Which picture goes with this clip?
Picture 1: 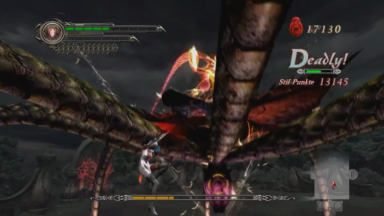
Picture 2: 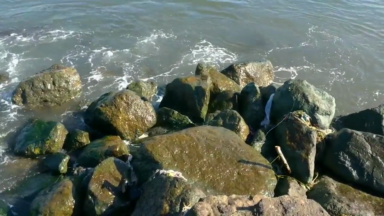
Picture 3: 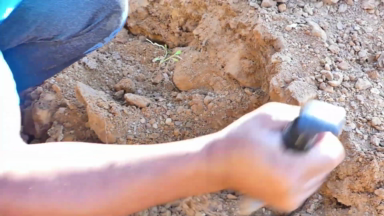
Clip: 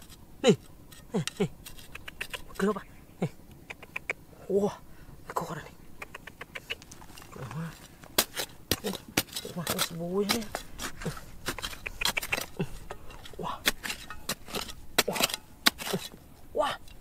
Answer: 3